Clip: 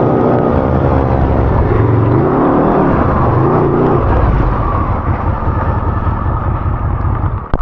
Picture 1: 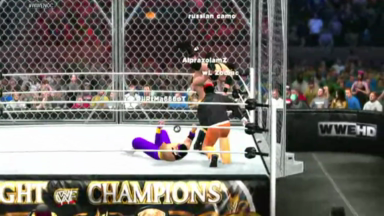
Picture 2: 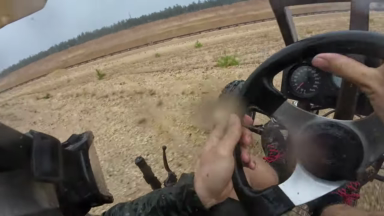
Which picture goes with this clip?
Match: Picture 2